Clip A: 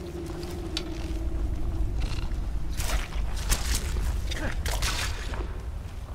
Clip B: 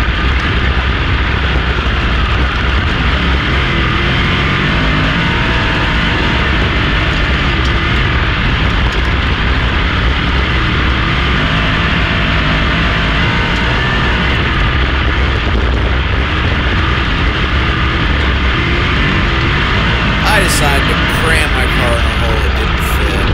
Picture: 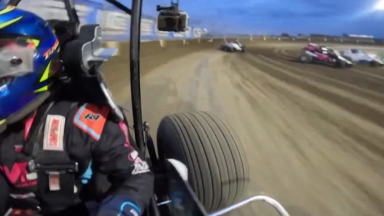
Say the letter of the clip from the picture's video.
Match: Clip B